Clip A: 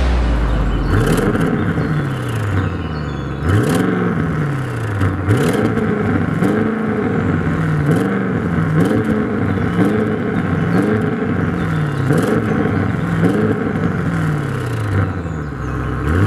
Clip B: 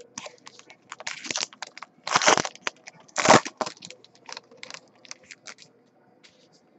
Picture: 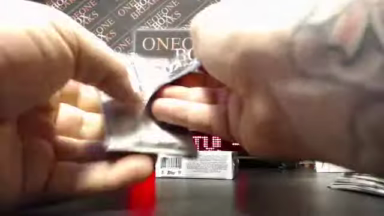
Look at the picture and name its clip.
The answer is B